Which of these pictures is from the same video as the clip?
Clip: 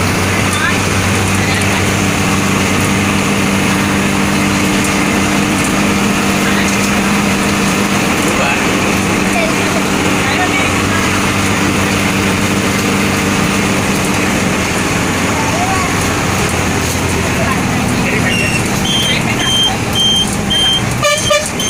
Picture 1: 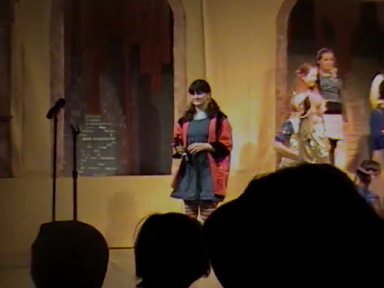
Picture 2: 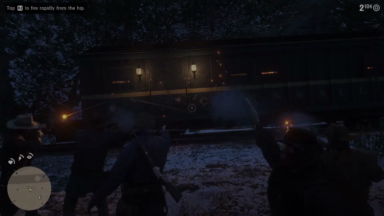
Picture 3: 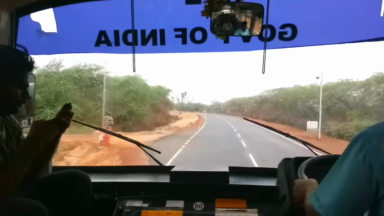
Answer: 3